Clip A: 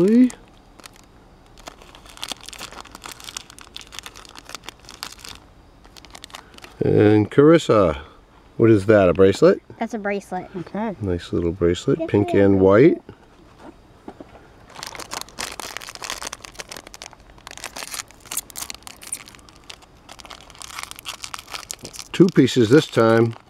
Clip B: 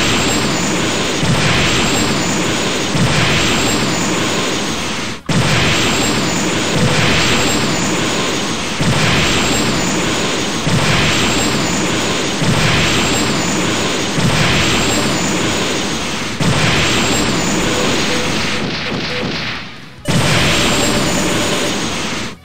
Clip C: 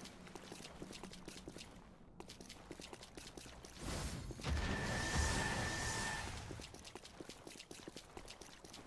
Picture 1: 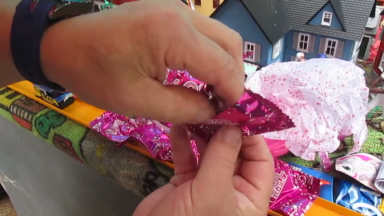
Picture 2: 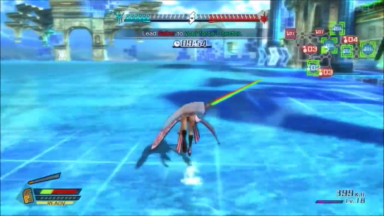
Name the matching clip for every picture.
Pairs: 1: A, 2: C